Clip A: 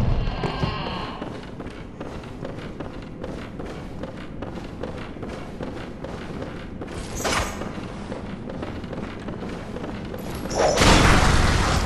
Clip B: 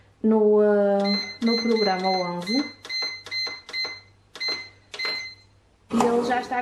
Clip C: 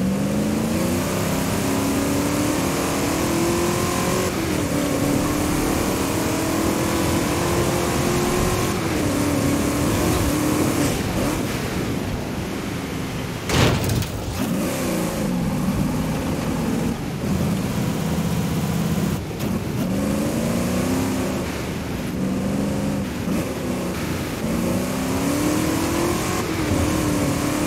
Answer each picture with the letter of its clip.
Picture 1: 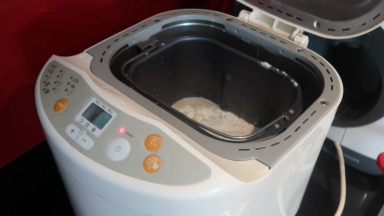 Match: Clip B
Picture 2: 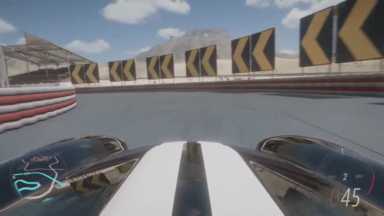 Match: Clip C